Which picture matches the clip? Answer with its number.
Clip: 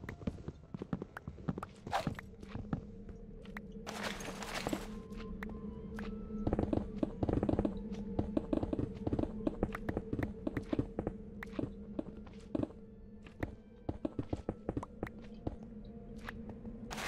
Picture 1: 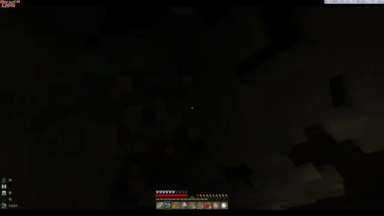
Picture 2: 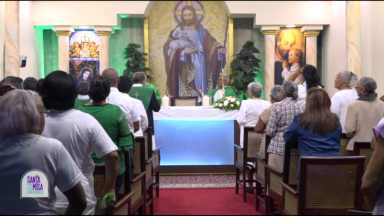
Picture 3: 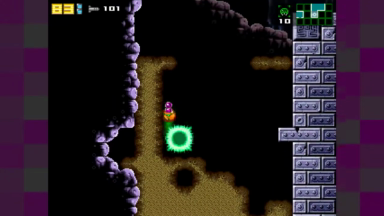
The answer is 1